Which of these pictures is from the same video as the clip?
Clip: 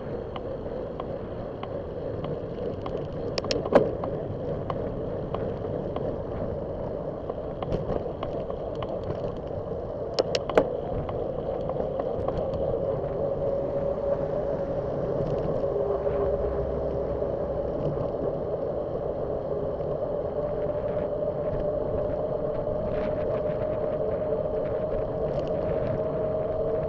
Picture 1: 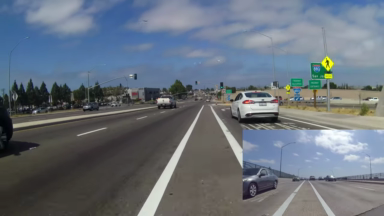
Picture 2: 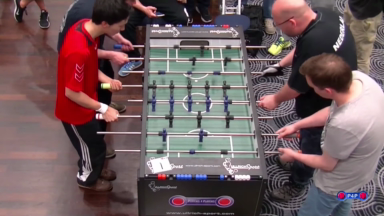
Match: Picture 1